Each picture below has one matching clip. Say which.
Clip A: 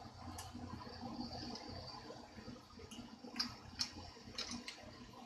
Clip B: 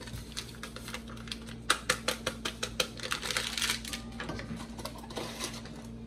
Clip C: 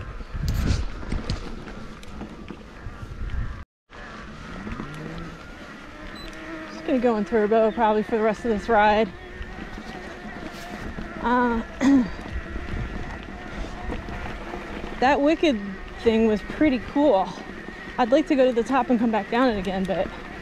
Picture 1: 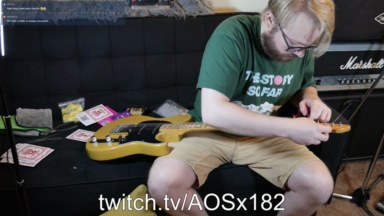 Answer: A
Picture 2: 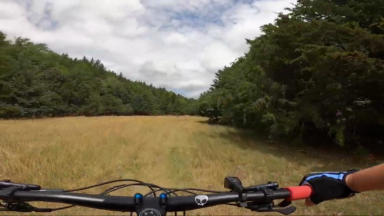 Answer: C